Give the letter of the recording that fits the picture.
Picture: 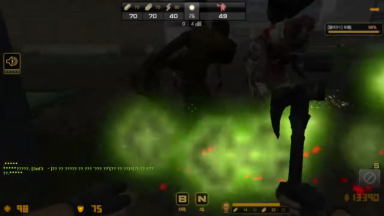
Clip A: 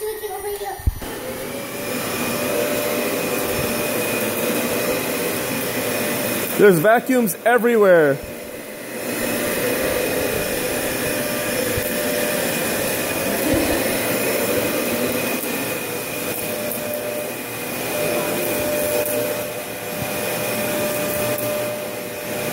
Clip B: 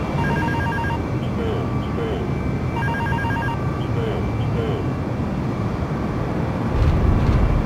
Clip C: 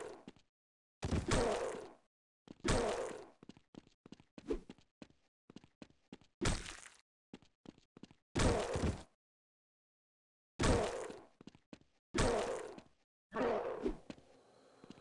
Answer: C